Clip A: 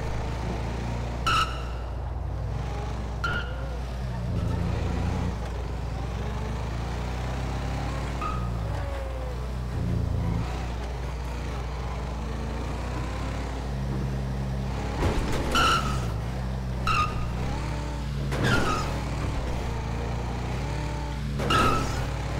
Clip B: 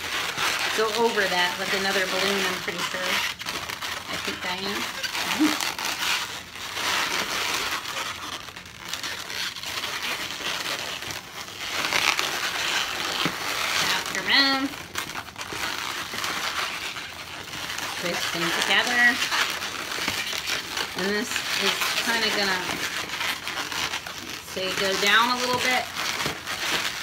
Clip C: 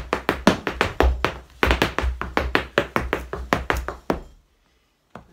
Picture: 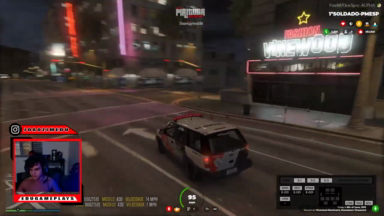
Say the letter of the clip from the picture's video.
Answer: A